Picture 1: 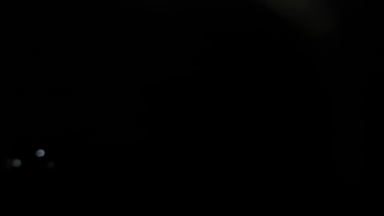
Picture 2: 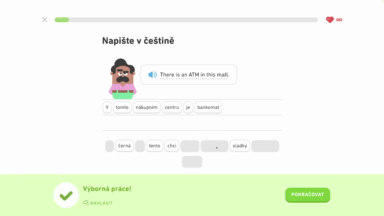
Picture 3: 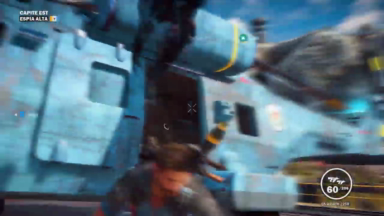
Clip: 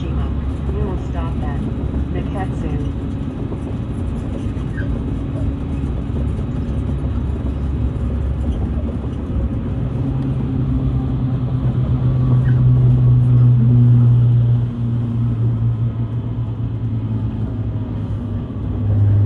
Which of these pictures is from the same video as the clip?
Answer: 1